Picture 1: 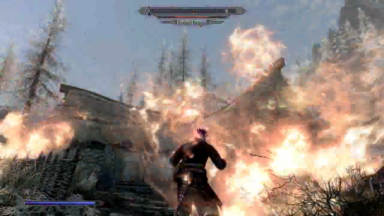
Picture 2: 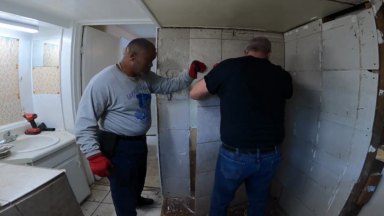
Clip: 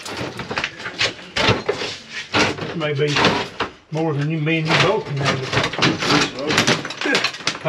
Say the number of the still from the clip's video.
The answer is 2